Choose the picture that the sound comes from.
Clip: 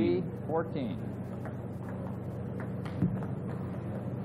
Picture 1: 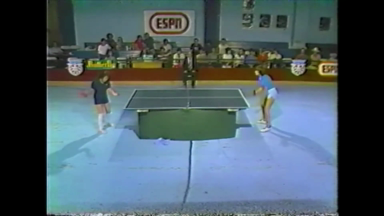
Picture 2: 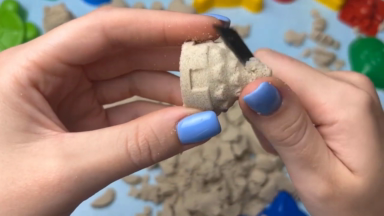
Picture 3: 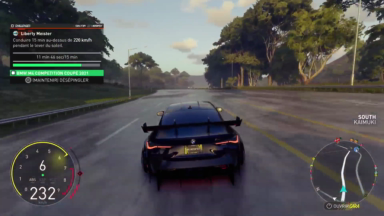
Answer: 1